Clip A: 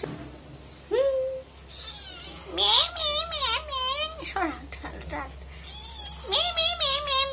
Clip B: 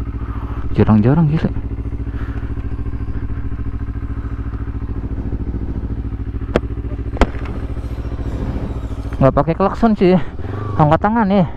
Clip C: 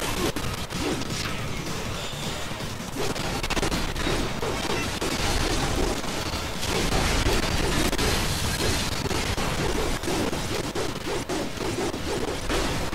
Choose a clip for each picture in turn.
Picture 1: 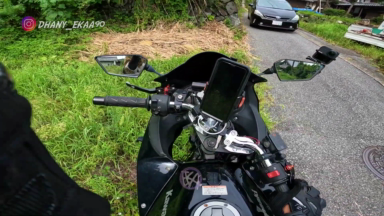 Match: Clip B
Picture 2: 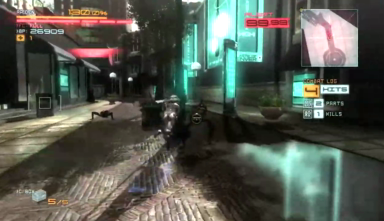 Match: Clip C